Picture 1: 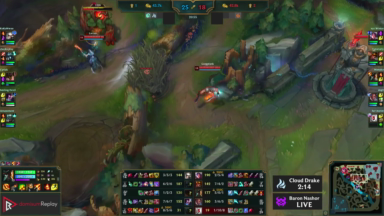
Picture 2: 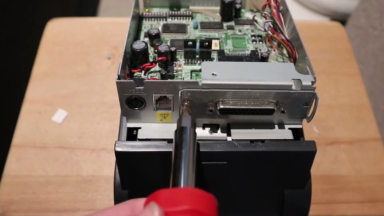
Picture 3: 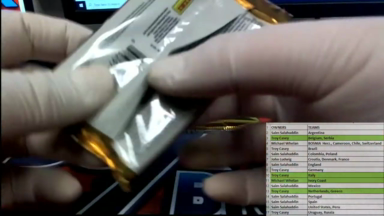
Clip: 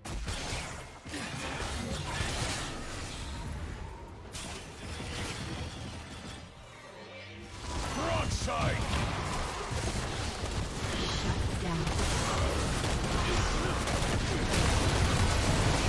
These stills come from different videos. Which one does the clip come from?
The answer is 1